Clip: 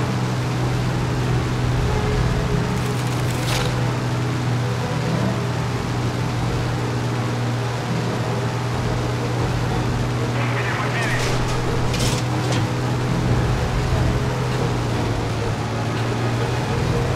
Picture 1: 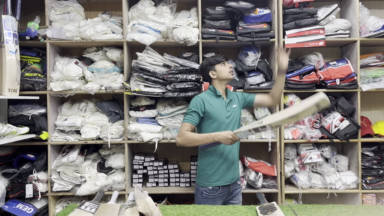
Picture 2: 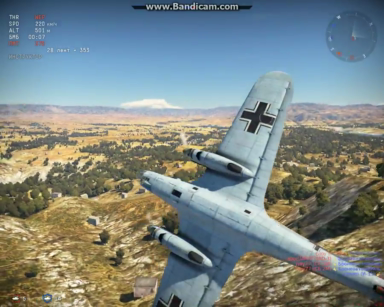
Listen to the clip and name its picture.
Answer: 2